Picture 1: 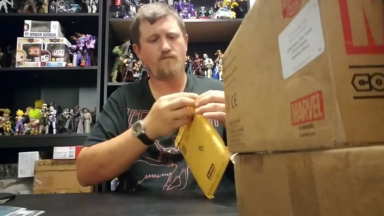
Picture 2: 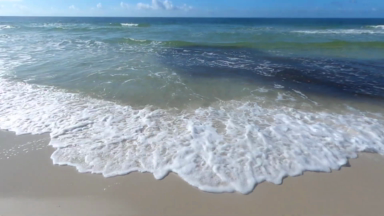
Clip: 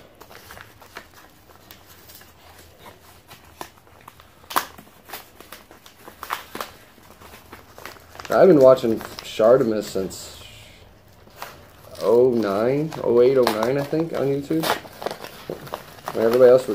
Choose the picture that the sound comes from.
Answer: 1